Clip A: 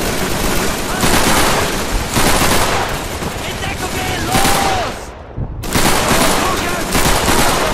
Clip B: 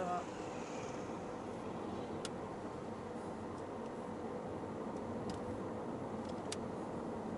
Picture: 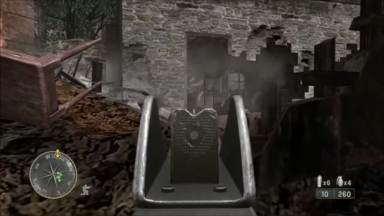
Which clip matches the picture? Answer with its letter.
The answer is A